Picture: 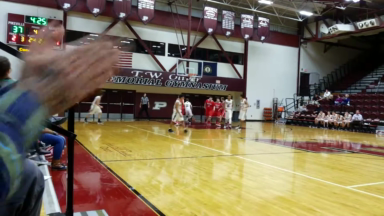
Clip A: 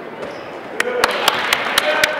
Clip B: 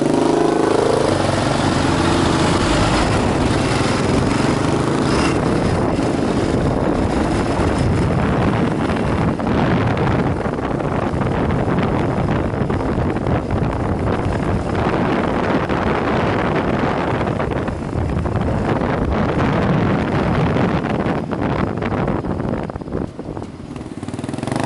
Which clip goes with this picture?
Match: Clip A